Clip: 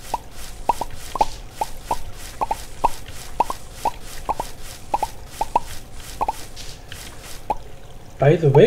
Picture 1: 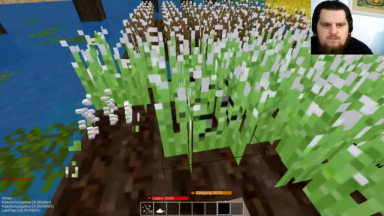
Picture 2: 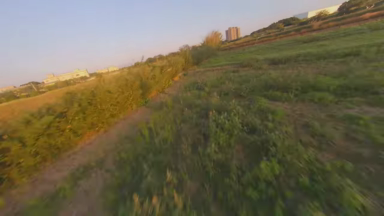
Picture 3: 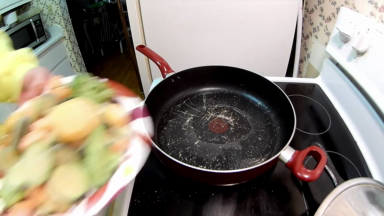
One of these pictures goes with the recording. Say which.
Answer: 1